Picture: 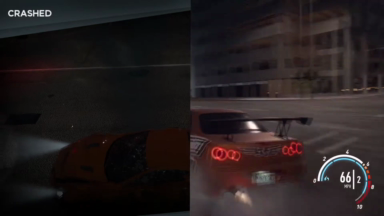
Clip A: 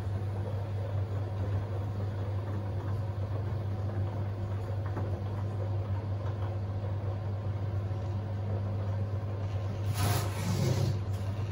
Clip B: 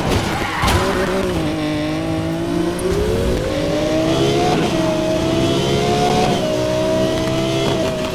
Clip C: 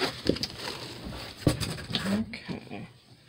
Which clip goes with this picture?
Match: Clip B